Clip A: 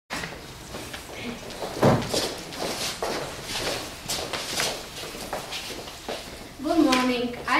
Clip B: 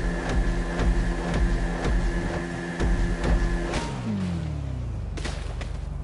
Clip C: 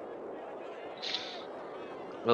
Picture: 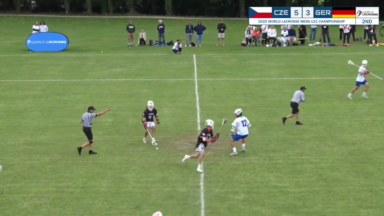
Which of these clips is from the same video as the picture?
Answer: C